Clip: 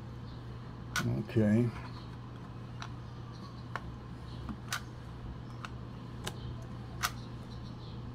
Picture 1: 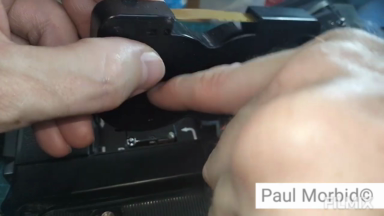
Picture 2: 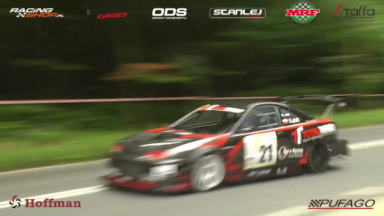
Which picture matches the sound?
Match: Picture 1